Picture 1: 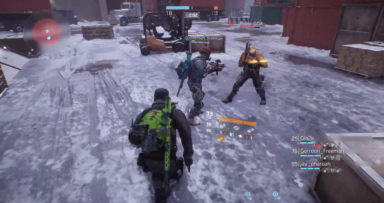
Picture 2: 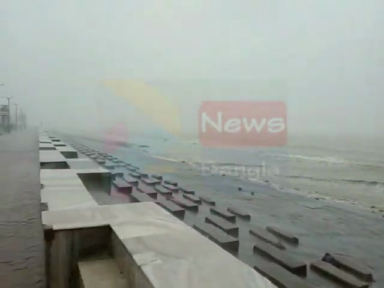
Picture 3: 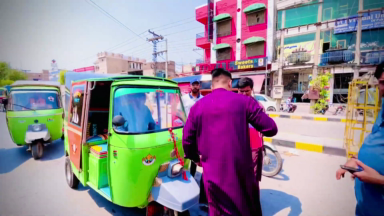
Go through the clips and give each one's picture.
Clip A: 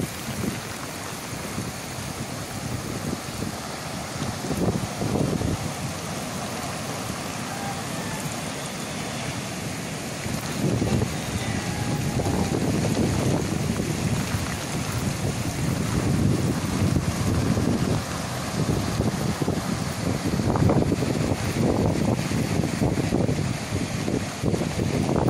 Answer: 2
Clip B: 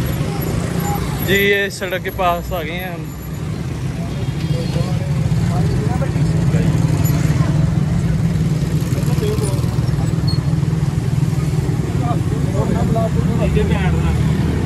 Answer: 3